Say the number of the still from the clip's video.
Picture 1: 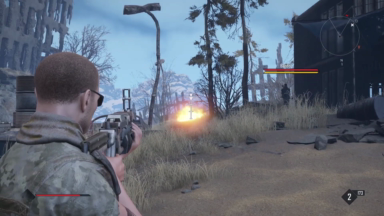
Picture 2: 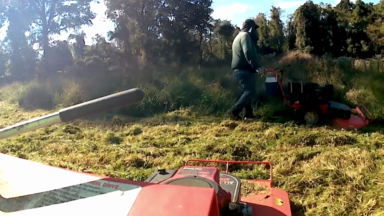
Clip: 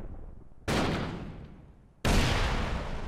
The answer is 1